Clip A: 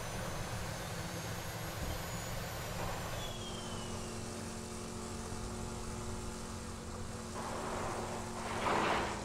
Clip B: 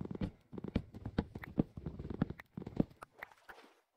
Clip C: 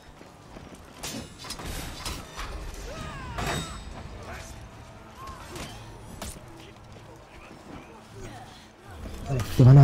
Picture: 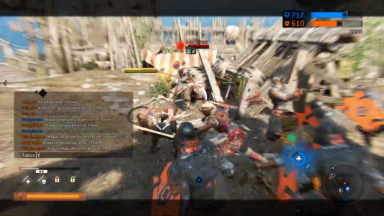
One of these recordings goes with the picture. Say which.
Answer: C